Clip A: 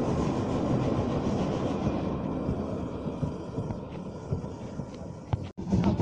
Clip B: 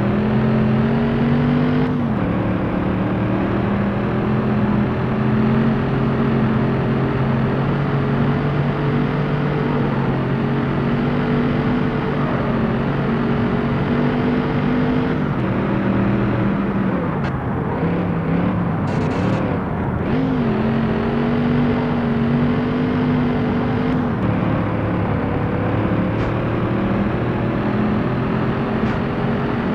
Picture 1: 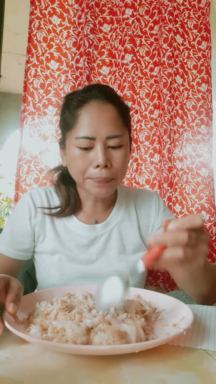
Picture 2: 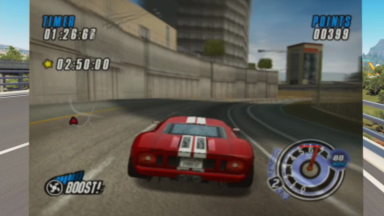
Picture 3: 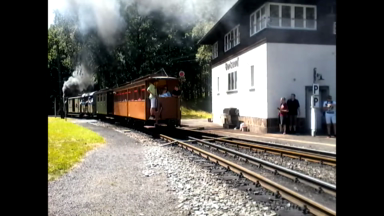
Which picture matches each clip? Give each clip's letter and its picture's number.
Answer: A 3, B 2